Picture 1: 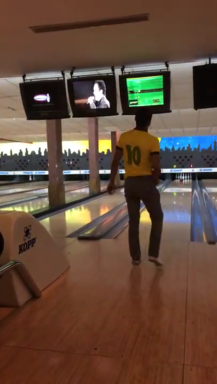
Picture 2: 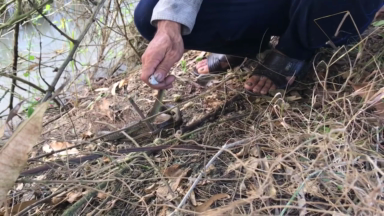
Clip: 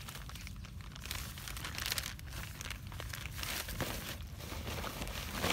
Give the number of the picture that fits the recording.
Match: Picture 2